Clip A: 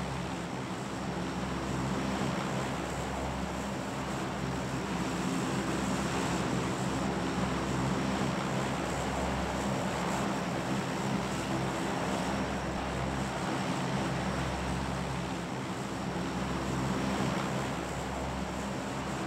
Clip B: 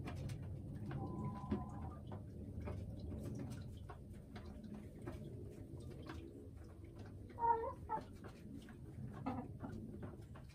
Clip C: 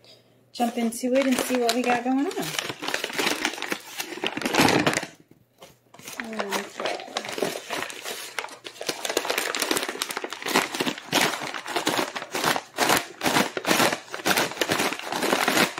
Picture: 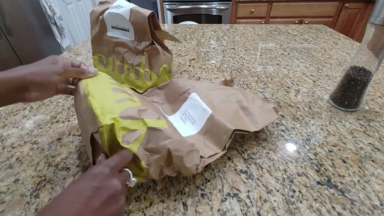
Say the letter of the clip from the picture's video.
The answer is C